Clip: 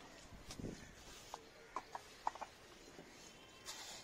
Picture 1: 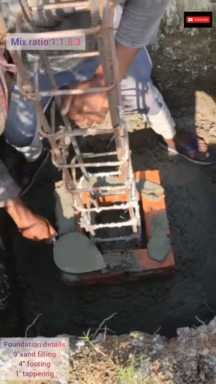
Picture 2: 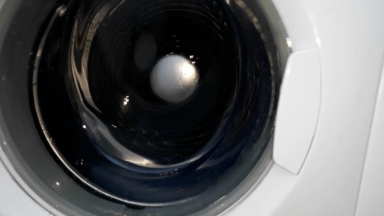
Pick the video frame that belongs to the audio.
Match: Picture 1